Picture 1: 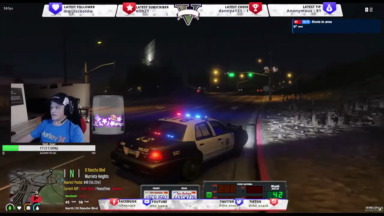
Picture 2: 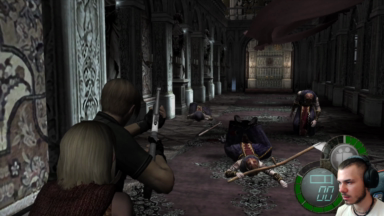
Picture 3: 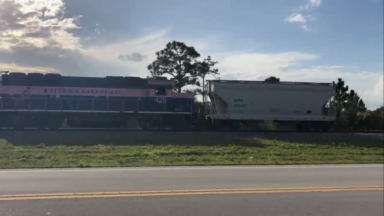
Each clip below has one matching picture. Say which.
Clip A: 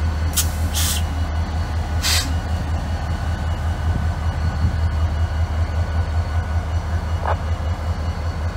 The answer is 3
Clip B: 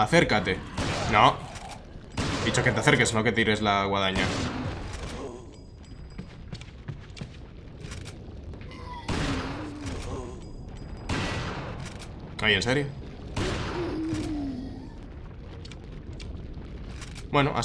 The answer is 2